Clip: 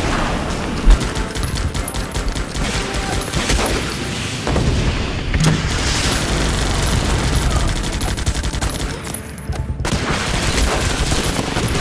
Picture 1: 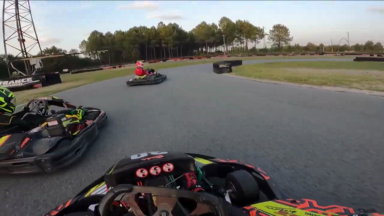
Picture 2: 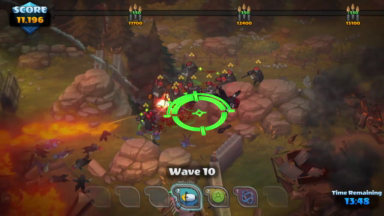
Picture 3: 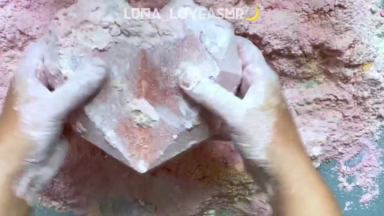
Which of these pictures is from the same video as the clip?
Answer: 2